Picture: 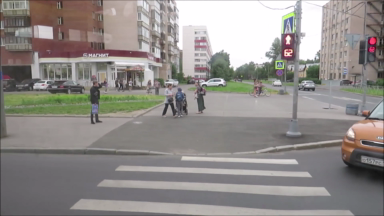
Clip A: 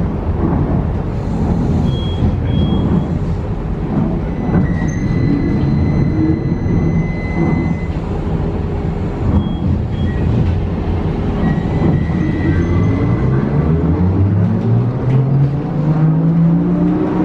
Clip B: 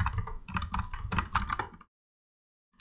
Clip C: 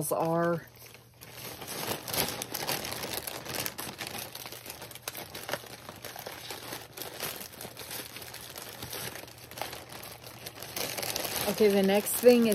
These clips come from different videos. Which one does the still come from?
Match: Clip A